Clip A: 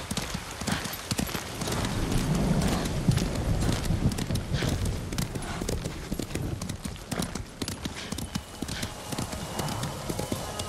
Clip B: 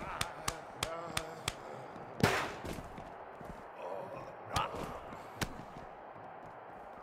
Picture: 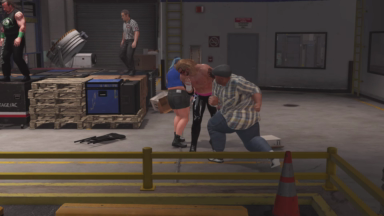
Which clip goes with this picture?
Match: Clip B